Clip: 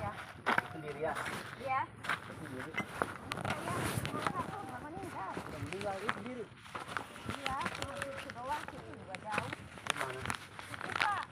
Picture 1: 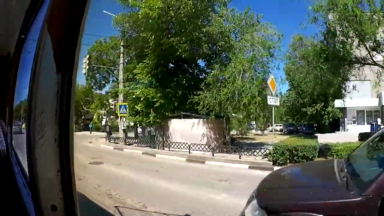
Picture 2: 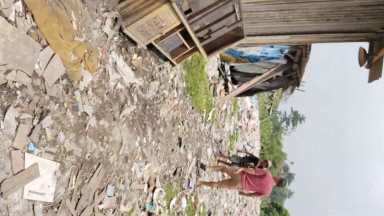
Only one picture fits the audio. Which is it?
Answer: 2